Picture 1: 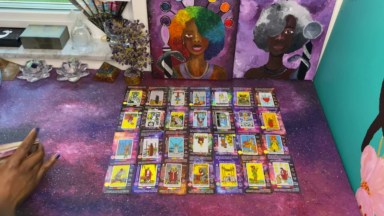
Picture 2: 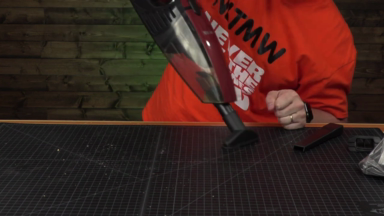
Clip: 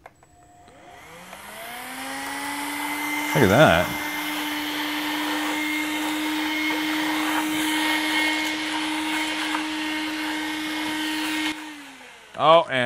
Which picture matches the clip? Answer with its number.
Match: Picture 2